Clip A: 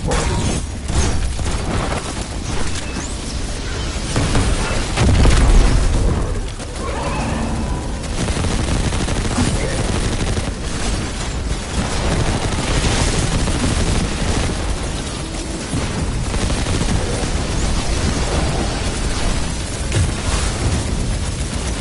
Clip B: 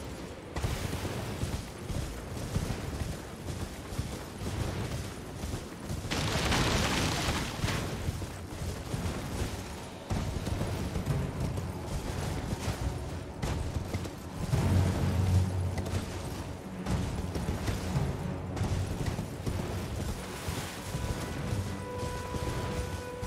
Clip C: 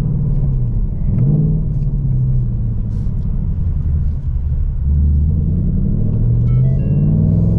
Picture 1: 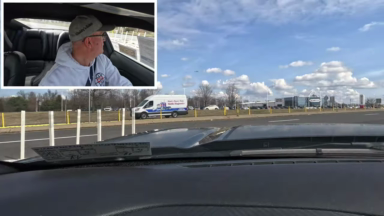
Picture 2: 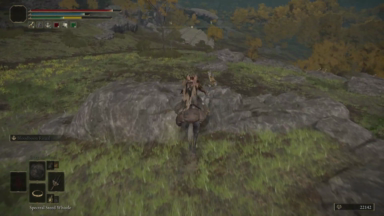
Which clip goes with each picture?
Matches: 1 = C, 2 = B